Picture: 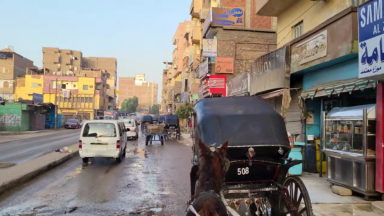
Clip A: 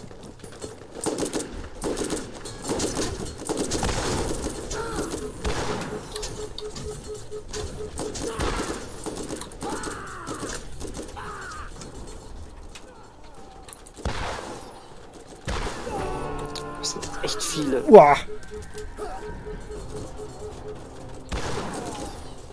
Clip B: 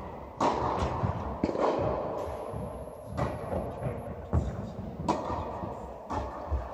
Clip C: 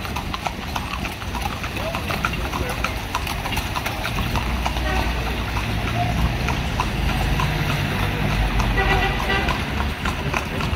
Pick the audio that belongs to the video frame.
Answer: C